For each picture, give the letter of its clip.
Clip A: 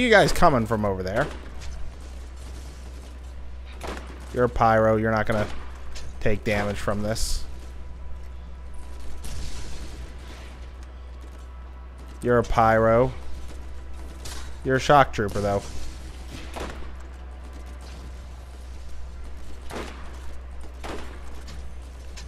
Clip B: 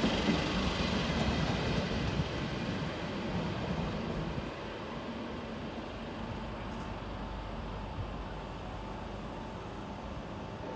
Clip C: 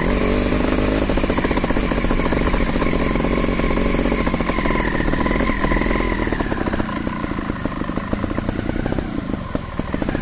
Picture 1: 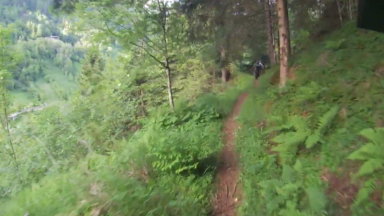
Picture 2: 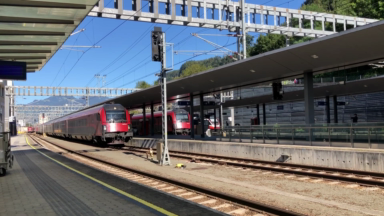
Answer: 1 C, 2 B